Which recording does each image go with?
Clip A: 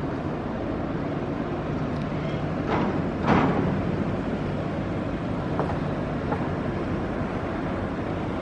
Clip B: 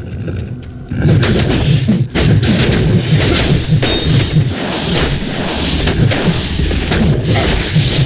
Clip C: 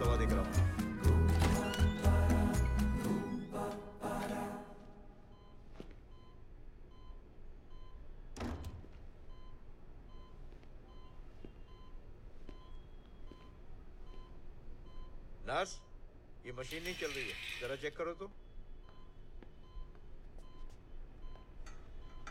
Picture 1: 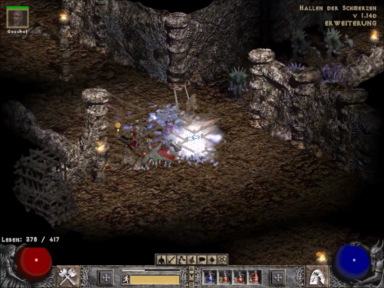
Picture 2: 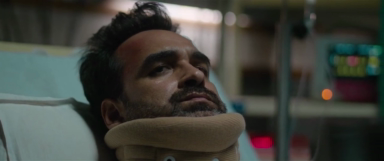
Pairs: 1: B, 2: C